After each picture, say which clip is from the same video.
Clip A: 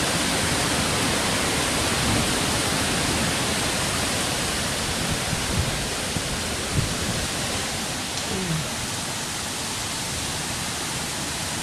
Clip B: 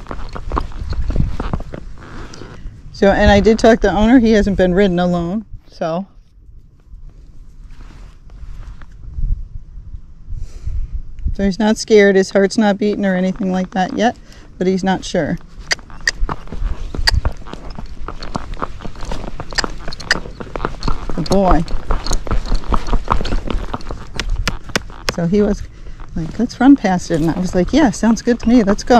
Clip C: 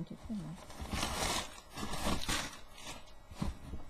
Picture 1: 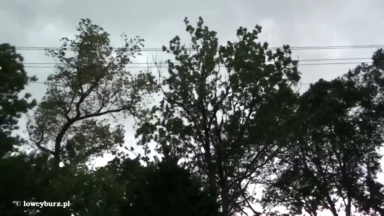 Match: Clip A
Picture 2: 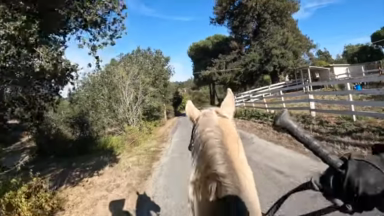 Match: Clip B